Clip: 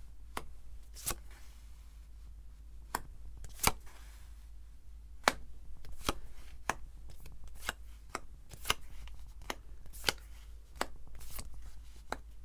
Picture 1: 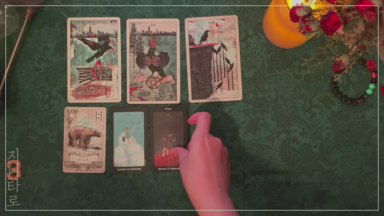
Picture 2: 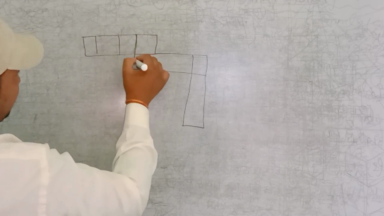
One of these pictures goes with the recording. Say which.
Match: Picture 1